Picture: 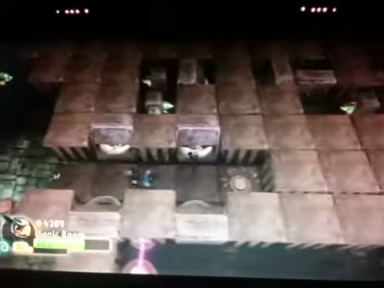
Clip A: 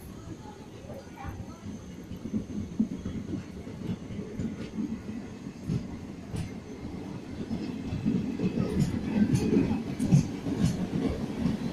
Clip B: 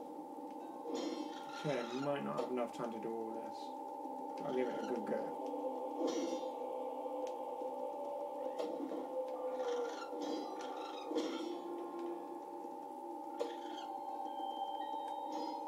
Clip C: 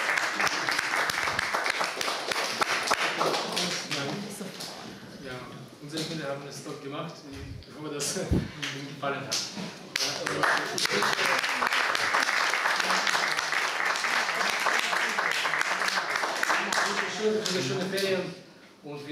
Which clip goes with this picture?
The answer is B